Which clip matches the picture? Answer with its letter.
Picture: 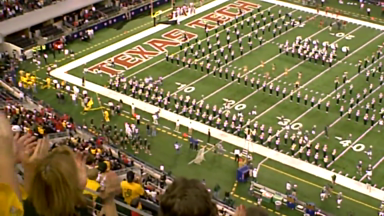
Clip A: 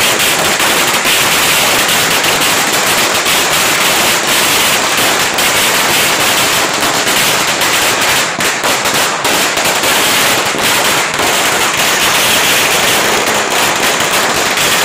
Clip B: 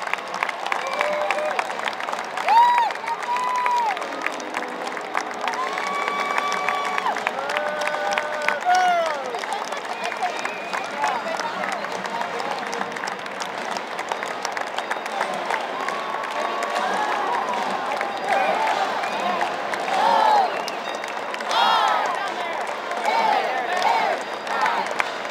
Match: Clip B